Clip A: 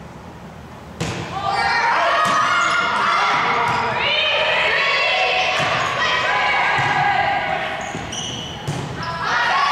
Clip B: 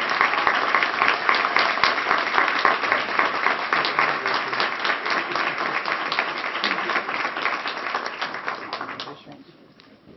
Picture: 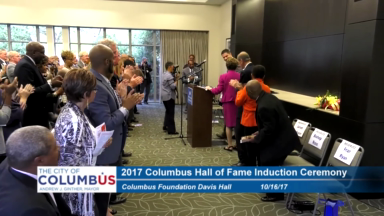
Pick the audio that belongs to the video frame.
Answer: B